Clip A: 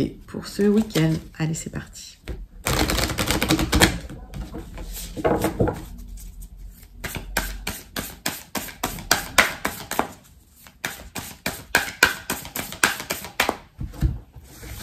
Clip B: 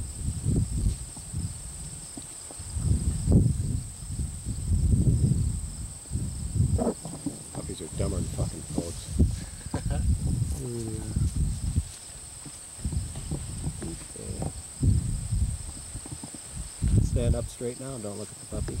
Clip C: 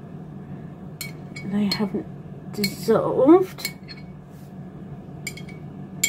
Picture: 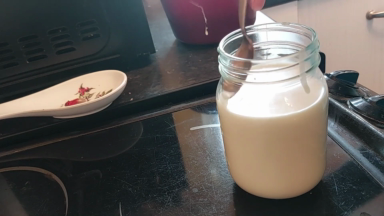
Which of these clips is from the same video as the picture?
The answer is C